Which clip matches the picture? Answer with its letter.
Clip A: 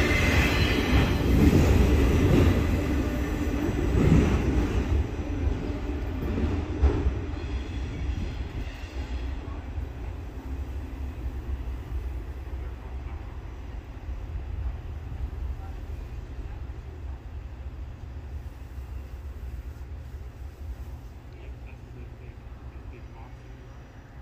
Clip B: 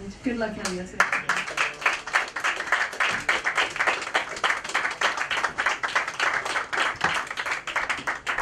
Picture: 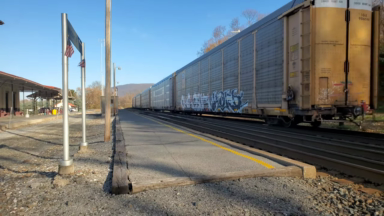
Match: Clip A